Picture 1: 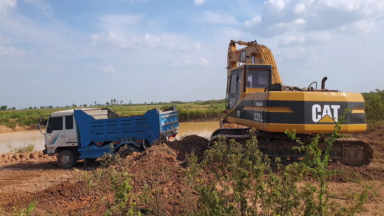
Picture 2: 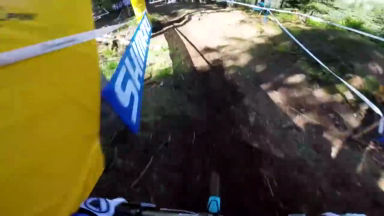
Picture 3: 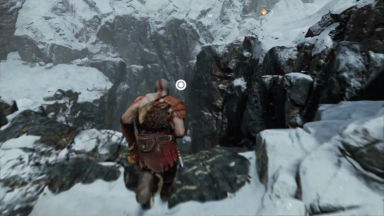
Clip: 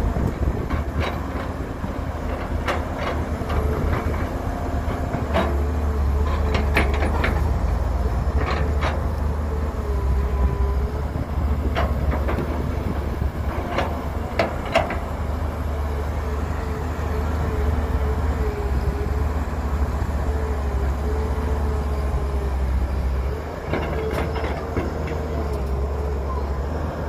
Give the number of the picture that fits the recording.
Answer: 1